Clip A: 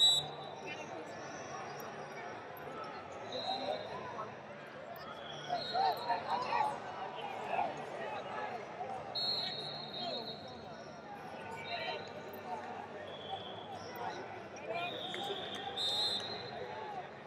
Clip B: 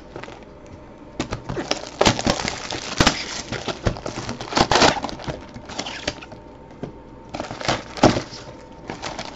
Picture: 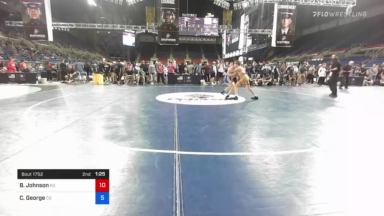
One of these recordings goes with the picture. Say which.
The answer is A